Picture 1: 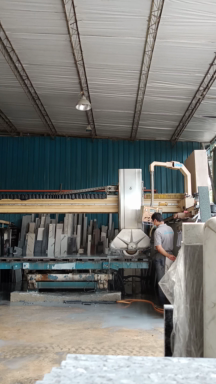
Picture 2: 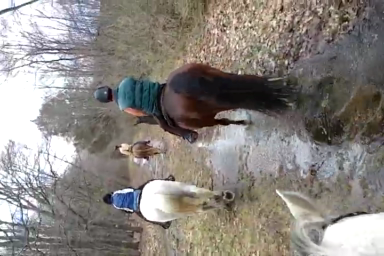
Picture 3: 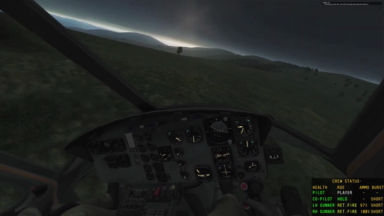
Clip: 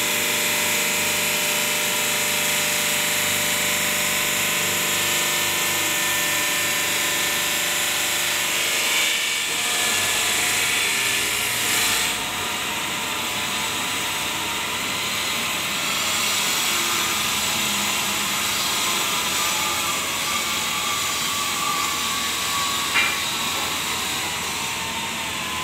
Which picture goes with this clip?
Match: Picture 1